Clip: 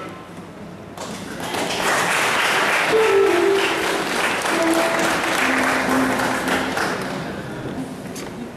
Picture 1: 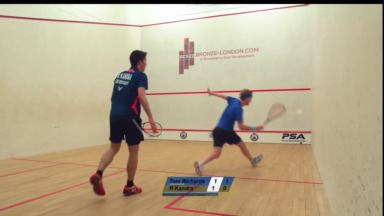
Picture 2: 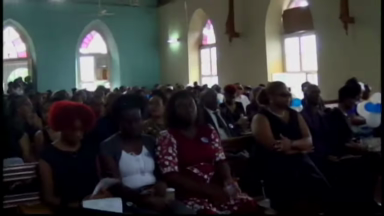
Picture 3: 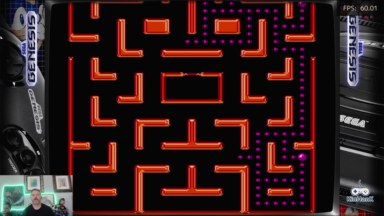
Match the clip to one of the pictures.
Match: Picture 2